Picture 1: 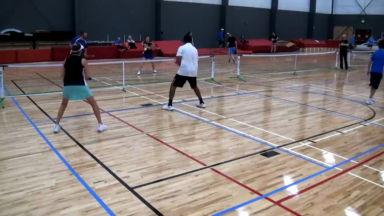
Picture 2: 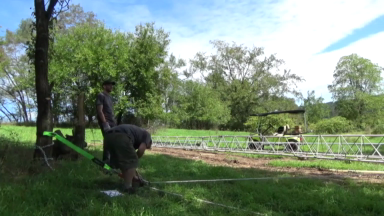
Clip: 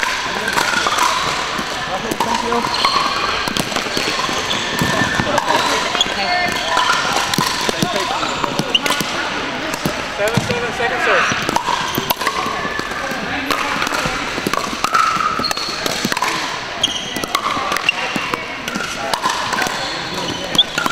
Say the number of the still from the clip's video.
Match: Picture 1